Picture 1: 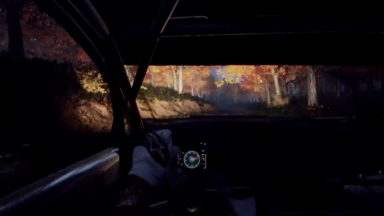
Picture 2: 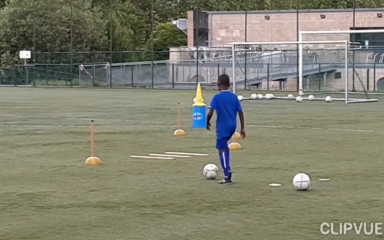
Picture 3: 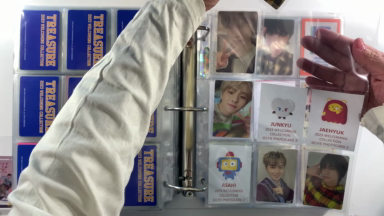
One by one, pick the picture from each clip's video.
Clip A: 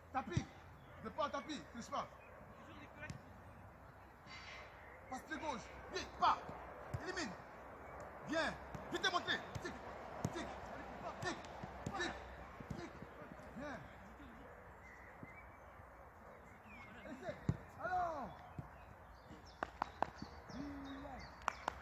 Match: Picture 2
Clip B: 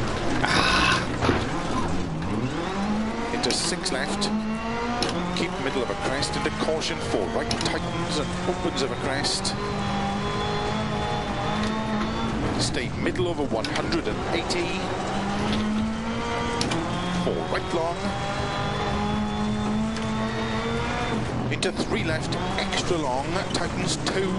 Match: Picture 1